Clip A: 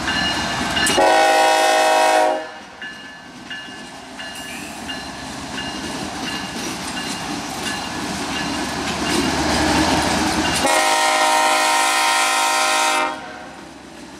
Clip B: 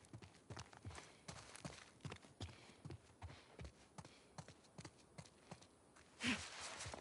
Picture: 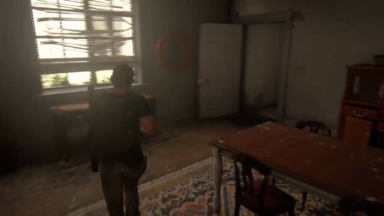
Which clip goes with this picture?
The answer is B